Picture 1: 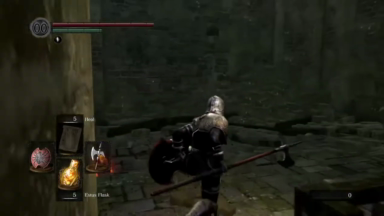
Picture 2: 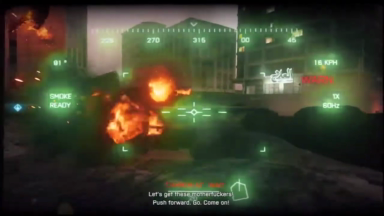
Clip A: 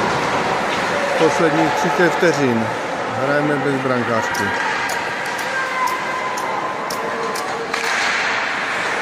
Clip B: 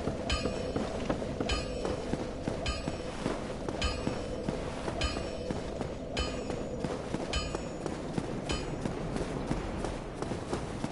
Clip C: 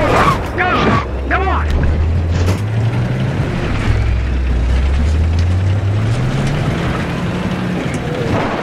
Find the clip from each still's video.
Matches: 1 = B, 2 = C